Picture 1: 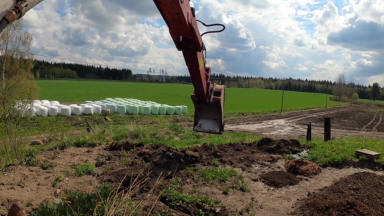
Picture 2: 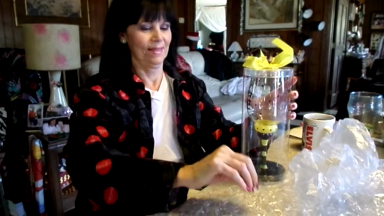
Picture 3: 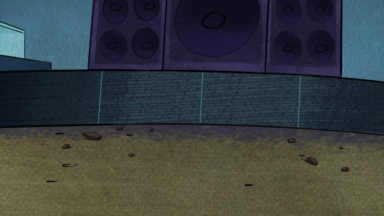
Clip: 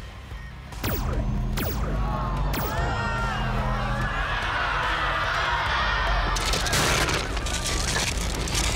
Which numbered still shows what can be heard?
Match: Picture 3